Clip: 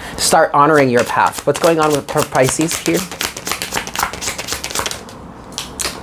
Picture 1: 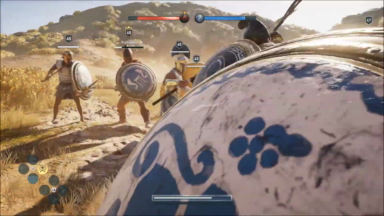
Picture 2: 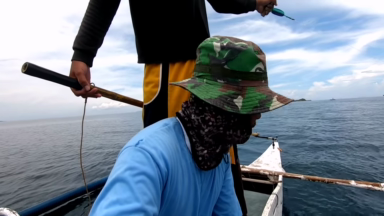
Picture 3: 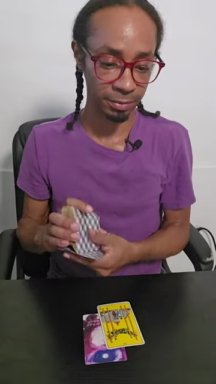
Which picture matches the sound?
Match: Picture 3